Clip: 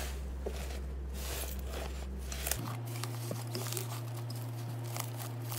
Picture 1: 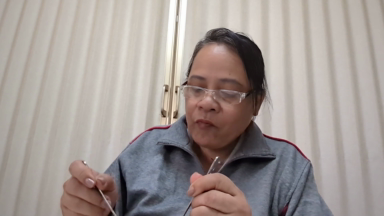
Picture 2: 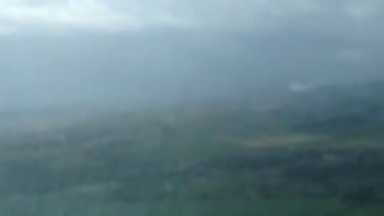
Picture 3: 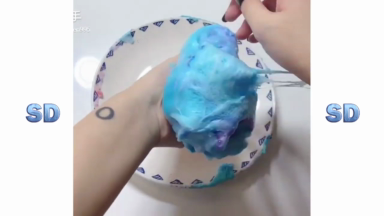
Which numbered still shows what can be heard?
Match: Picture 3